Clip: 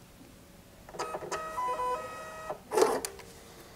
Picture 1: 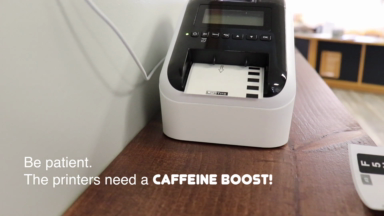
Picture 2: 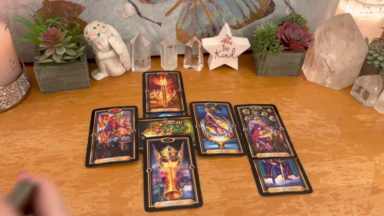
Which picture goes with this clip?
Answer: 1